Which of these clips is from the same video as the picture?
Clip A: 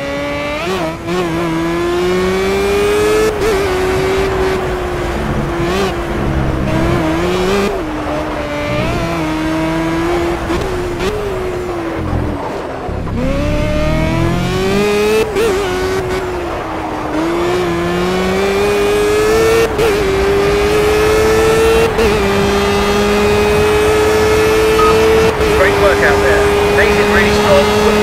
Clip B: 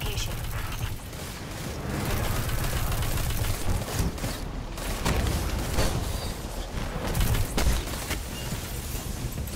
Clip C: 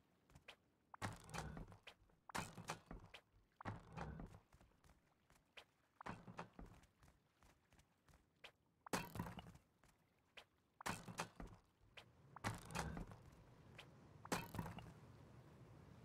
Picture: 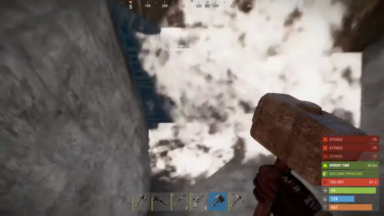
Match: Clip C